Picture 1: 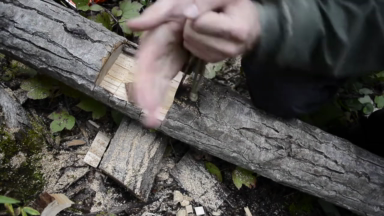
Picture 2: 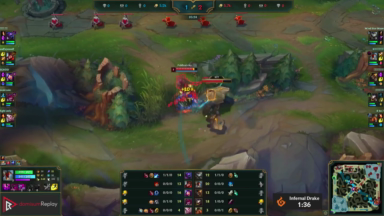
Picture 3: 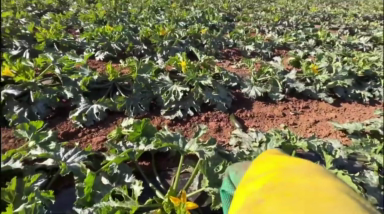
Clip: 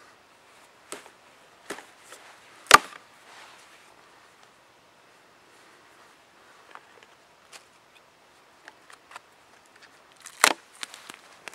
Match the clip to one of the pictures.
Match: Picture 1